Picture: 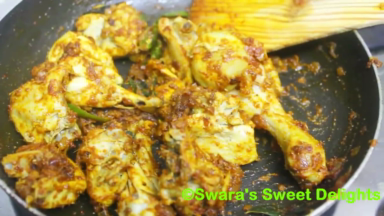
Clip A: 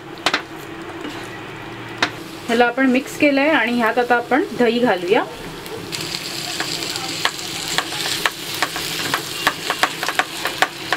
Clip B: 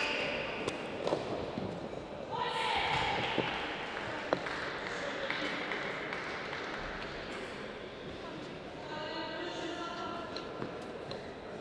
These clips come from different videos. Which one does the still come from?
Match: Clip A